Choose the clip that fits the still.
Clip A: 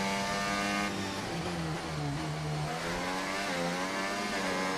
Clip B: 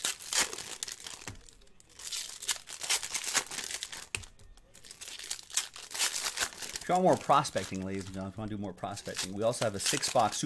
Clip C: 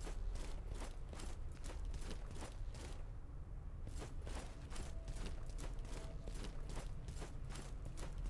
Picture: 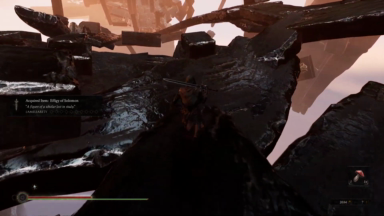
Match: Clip C